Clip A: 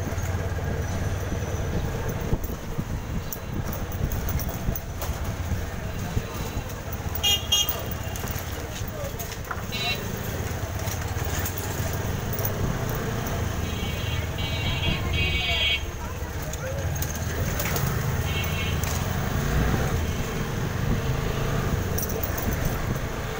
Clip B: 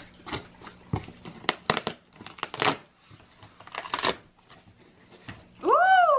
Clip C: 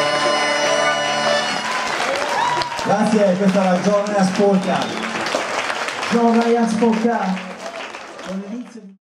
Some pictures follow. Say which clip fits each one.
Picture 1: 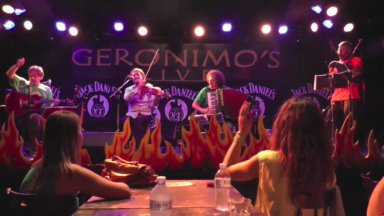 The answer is C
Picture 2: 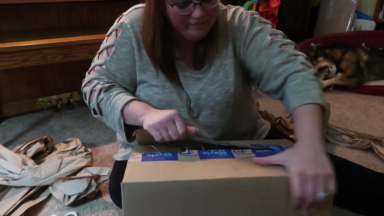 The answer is B